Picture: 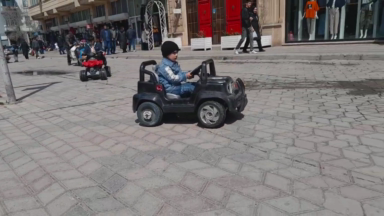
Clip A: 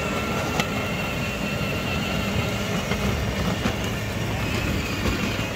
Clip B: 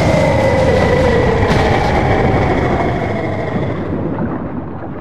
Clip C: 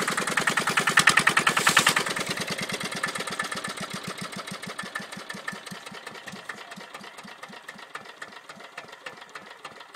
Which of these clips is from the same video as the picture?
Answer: A